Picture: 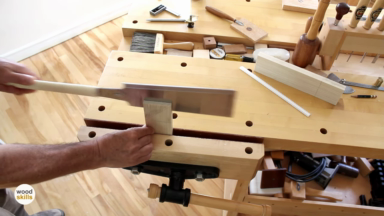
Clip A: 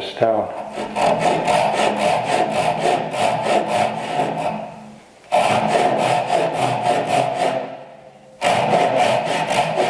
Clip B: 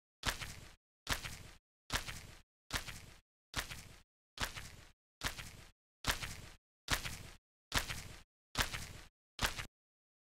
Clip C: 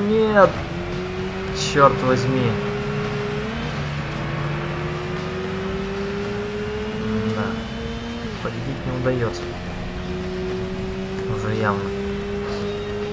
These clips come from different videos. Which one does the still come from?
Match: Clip A